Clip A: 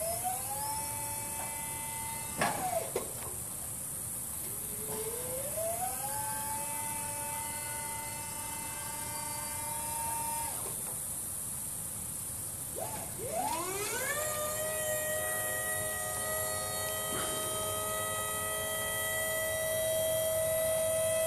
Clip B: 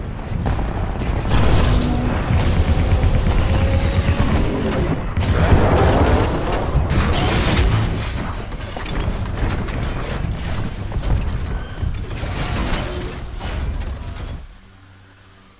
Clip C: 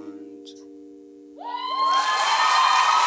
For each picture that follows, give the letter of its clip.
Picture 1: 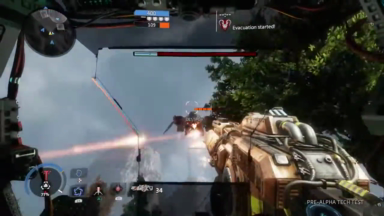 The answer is B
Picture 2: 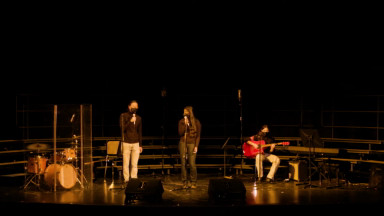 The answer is C